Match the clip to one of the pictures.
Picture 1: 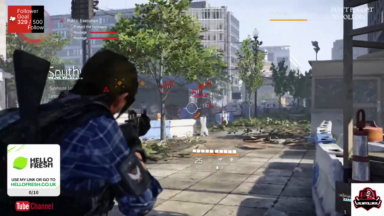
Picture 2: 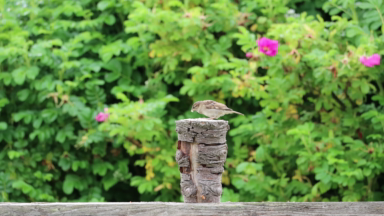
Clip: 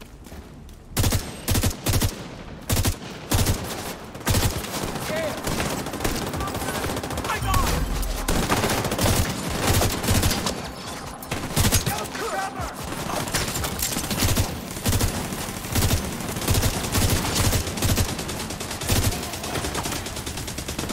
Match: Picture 1